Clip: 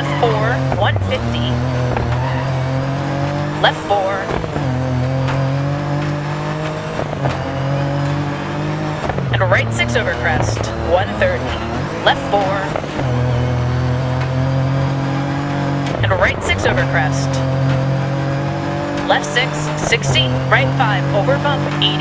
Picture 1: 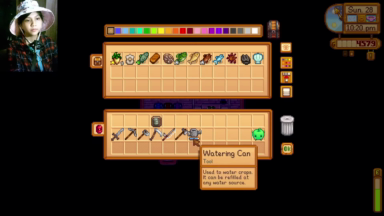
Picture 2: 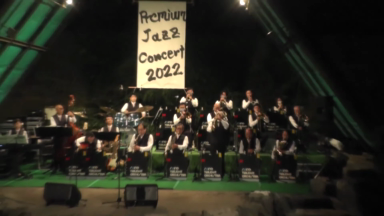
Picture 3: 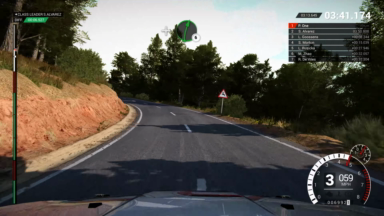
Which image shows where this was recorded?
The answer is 3